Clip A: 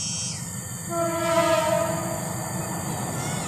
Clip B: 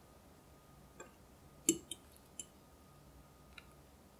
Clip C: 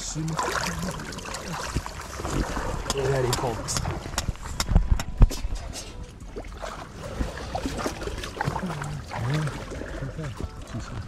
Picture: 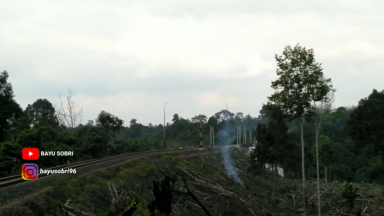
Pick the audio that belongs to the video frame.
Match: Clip A